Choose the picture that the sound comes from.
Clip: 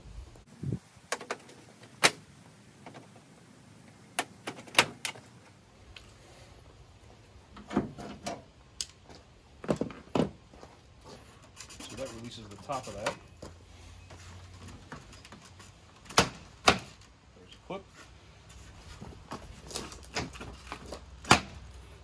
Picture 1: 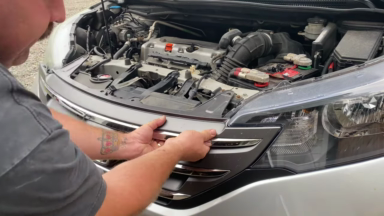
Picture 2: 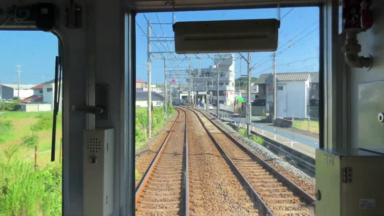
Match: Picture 1